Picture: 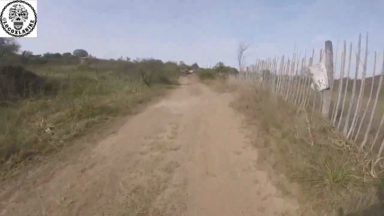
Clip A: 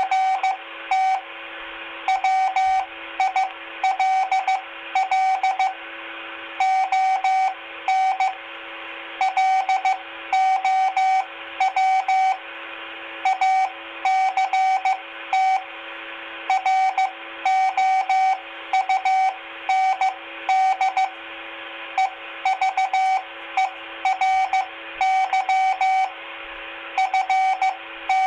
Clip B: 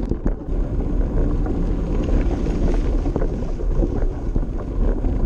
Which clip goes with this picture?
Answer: B